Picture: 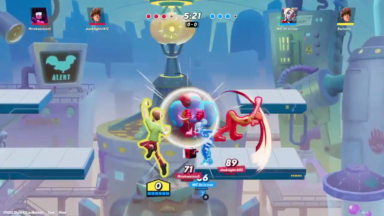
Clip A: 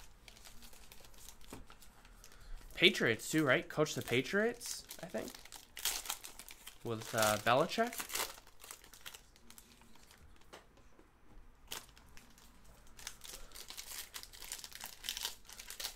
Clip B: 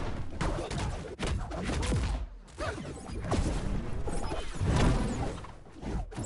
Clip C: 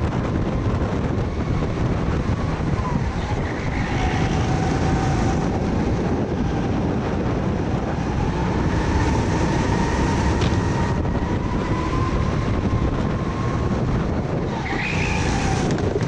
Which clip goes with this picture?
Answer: B